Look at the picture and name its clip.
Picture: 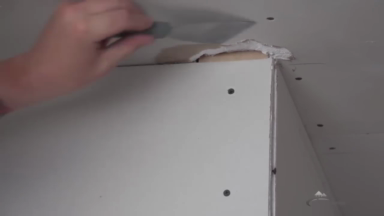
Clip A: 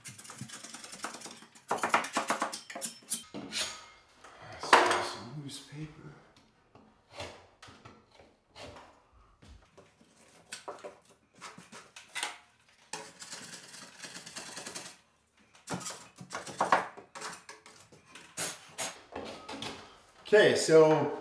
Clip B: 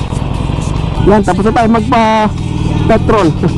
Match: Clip A